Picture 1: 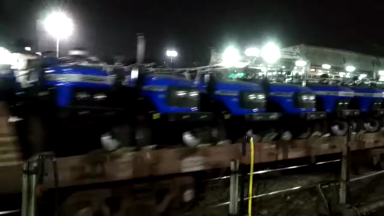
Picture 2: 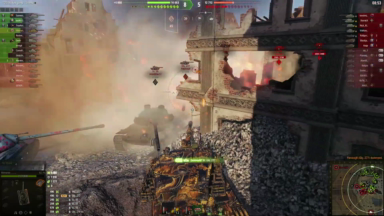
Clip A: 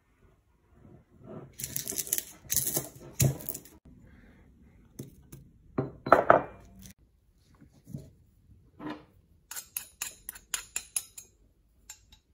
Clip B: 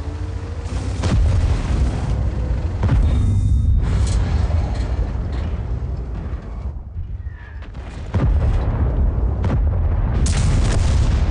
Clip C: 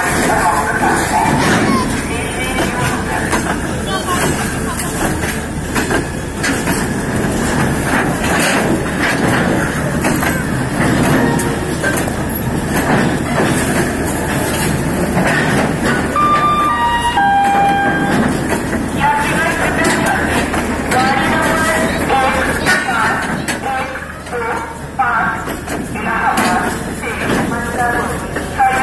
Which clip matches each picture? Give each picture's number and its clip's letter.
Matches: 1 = C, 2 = B